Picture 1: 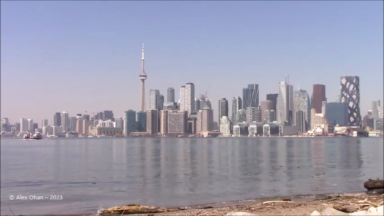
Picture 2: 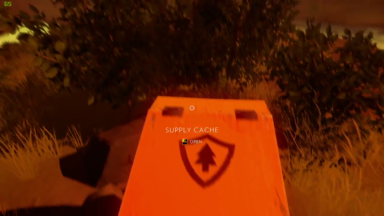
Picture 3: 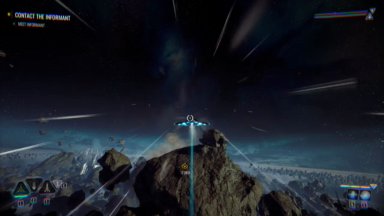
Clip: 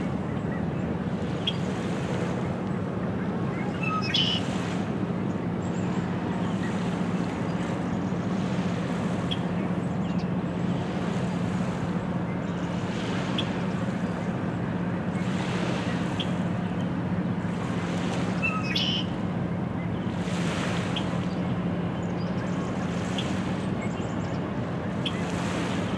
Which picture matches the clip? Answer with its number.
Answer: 1